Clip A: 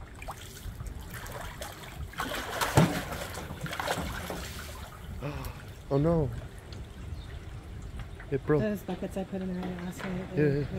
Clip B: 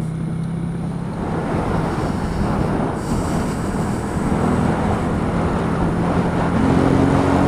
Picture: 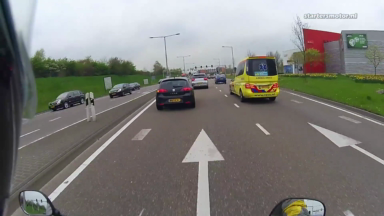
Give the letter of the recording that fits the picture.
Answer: B